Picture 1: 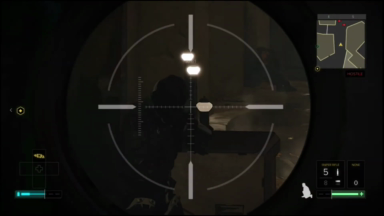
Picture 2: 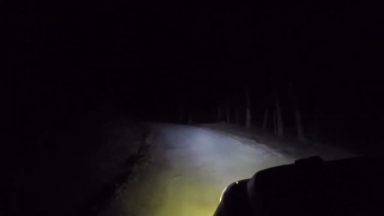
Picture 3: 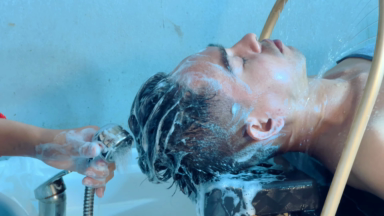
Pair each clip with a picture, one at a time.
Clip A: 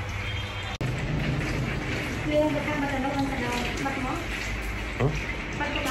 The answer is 3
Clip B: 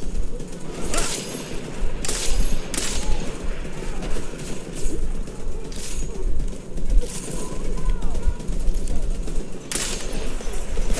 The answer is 1